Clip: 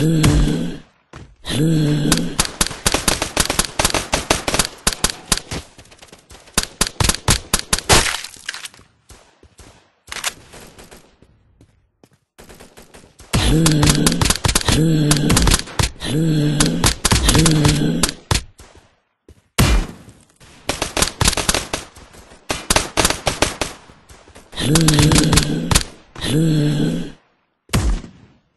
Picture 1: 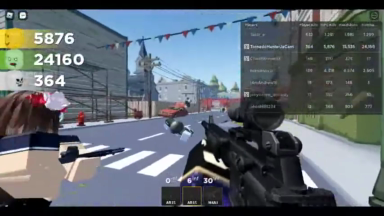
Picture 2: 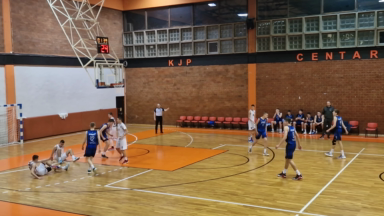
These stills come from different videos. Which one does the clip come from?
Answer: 1